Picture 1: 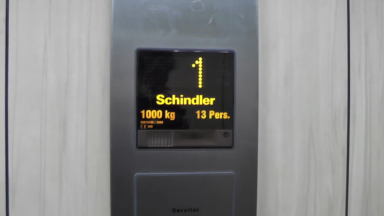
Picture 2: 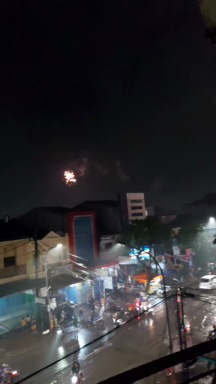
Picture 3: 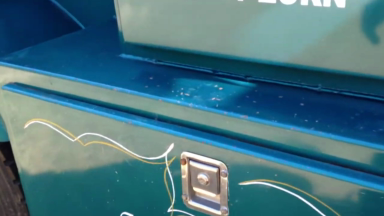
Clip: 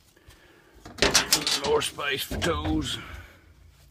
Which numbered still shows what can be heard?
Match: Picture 3